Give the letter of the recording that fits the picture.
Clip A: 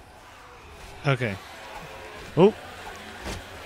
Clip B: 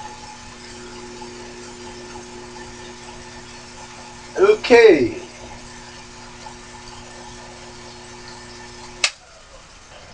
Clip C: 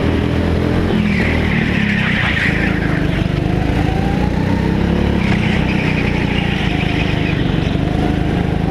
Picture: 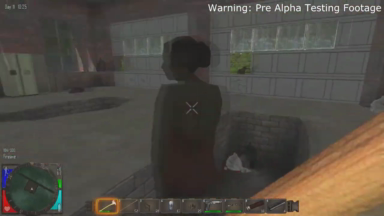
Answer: A